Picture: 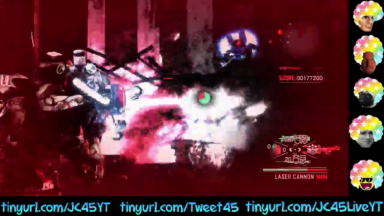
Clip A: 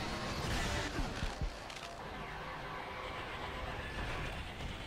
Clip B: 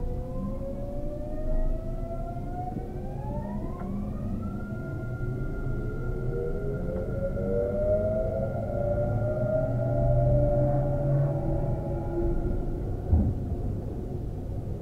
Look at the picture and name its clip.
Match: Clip A